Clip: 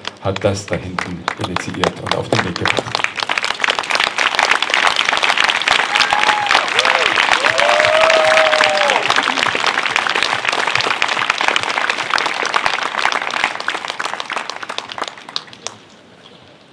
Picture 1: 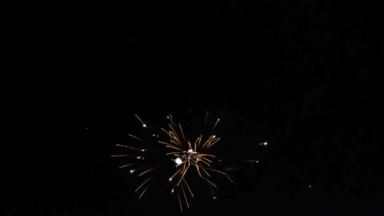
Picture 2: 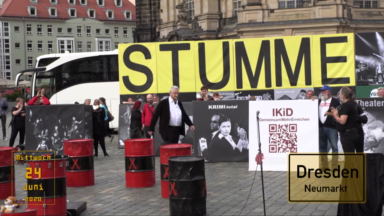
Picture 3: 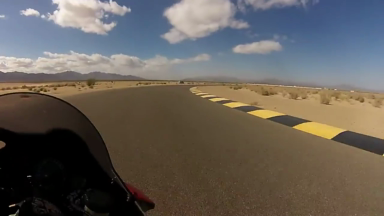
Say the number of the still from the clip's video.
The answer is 2